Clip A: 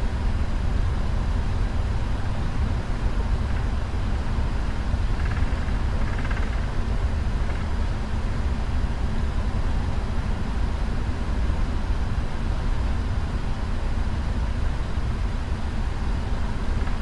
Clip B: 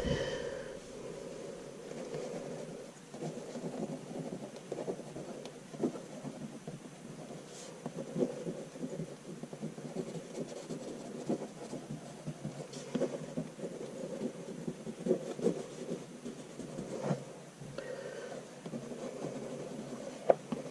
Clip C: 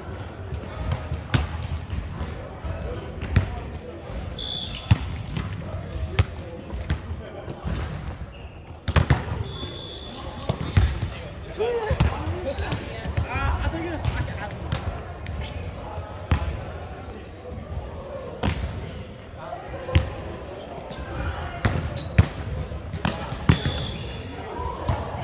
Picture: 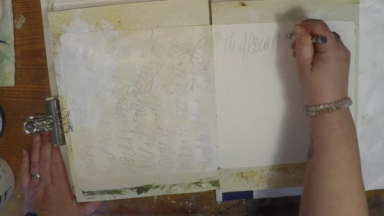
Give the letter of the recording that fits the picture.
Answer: B